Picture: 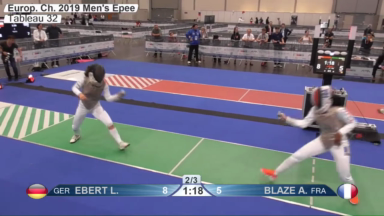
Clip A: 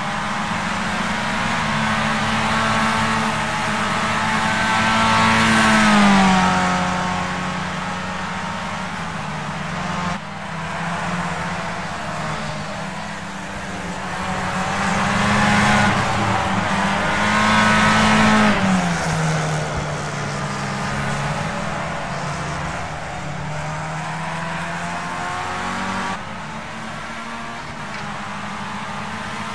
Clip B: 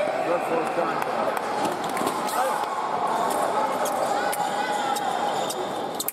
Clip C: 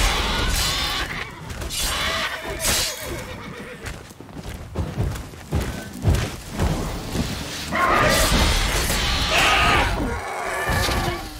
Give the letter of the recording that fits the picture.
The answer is B